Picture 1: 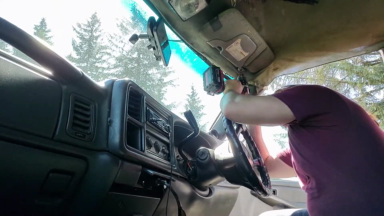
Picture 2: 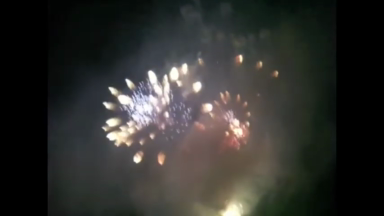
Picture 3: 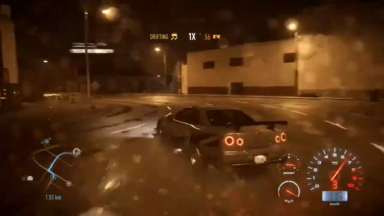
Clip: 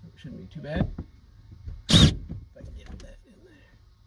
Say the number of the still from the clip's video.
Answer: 1